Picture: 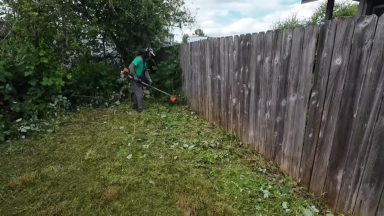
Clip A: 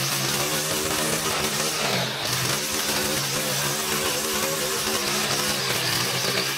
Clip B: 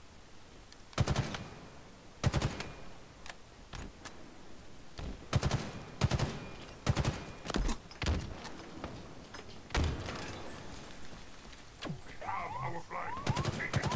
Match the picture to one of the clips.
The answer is A